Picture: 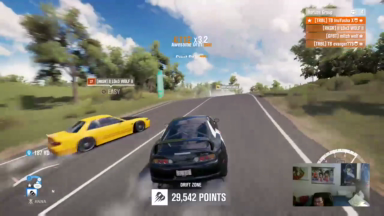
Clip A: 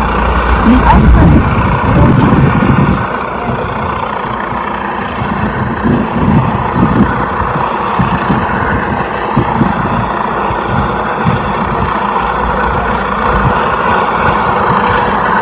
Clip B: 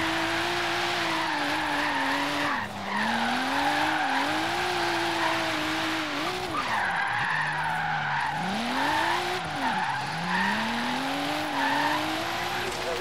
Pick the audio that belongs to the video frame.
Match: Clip B